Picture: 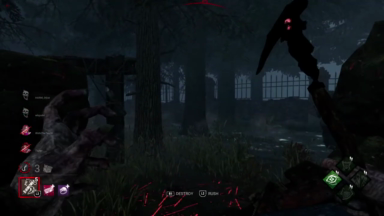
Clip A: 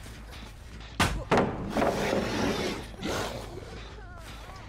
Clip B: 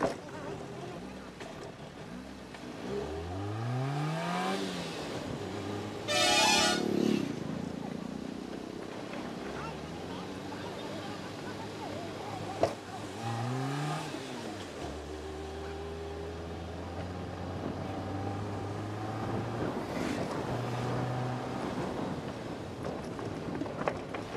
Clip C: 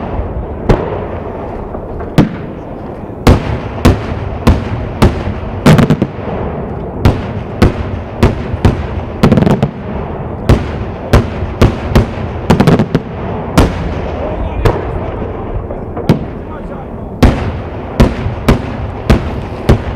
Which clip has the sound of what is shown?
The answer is A